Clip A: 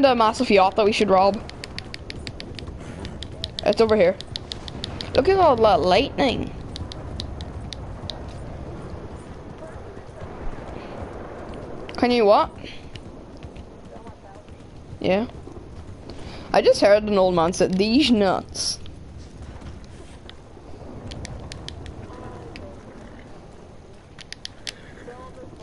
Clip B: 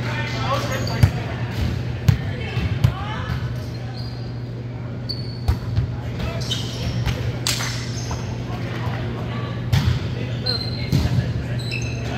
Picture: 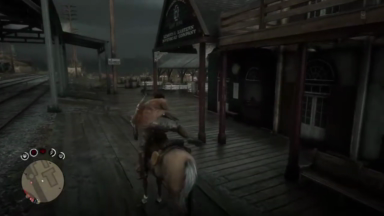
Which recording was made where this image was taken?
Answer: A